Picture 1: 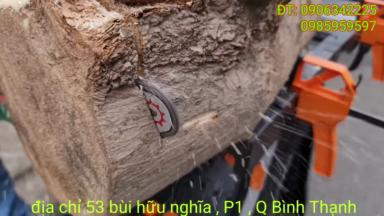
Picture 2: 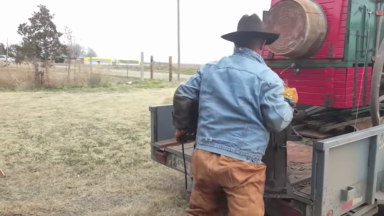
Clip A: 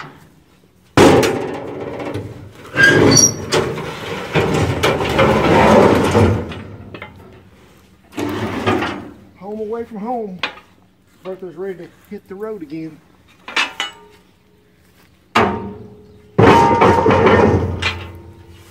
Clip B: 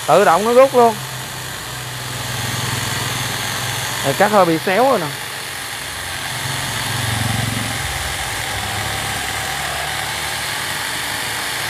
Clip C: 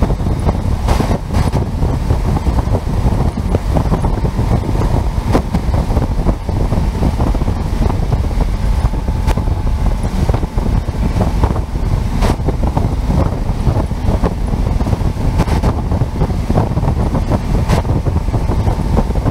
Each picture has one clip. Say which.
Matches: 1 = B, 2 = A